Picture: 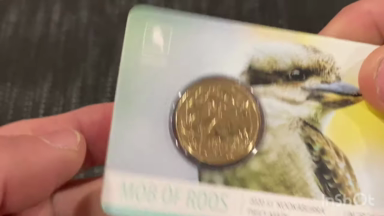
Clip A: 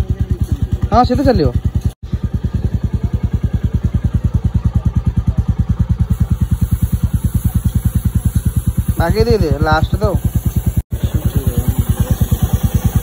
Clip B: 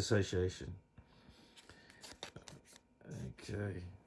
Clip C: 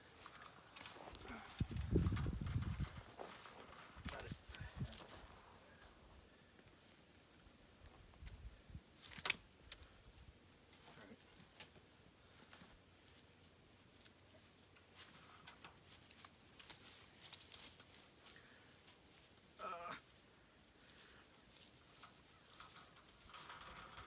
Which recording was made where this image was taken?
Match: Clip B